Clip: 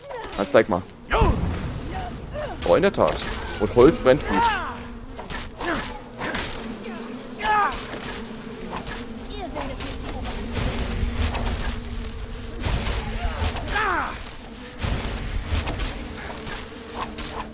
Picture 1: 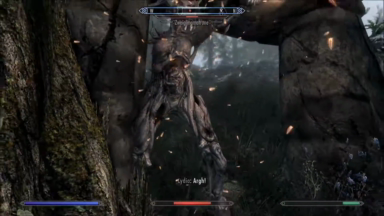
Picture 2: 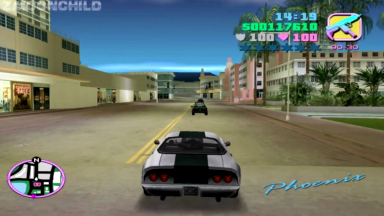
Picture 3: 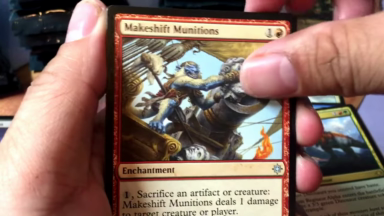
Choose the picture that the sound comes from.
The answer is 1